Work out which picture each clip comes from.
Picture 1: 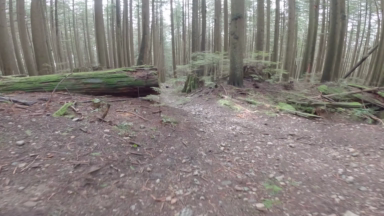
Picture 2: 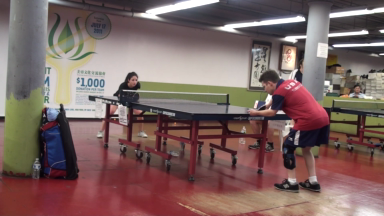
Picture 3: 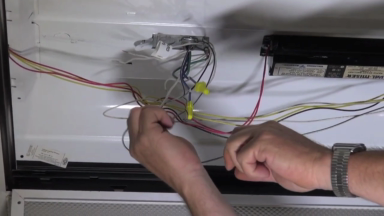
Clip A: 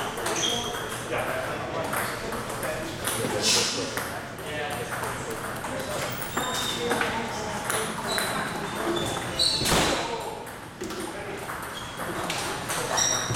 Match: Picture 2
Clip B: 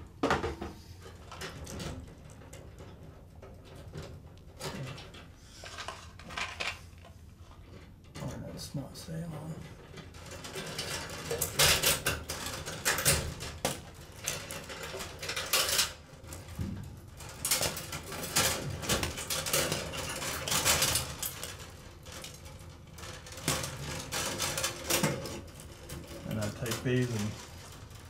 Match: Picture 3